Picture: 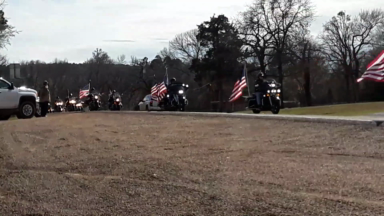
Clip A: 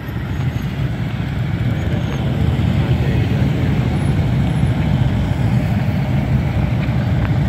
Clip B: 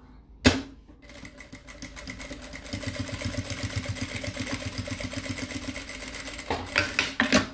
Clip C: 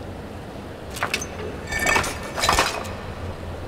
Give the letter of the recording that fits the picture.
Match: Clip A